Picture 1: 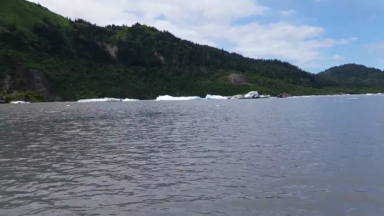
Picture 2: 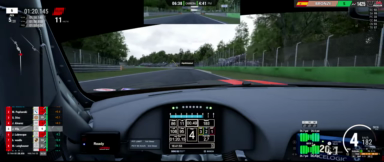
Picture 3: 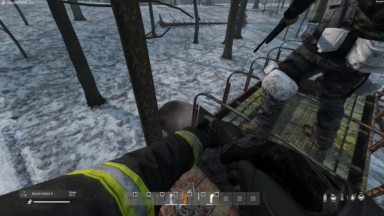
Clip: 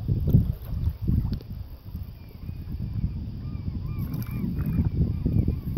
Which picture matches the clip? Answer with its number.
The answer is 1